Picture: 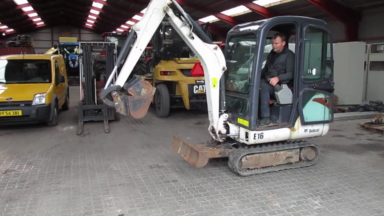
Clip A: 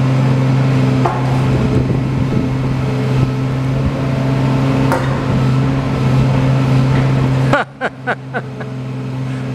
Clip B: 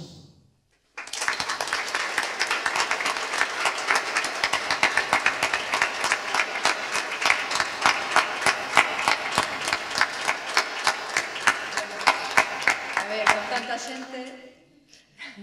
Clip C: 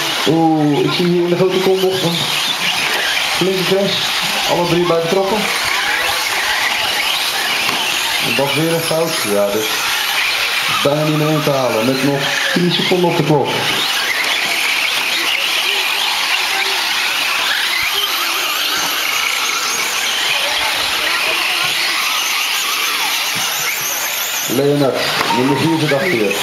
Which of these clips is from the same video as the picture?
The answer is A